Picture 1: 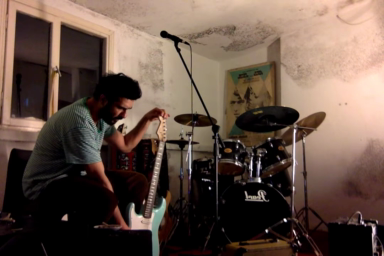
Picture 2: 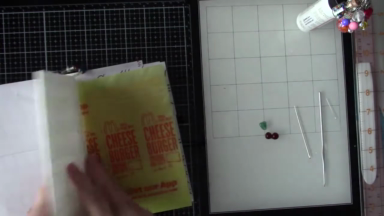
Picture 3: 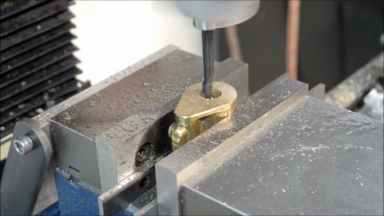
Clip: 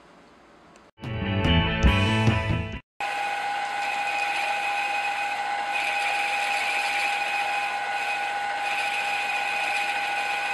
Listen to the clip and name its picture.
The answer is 3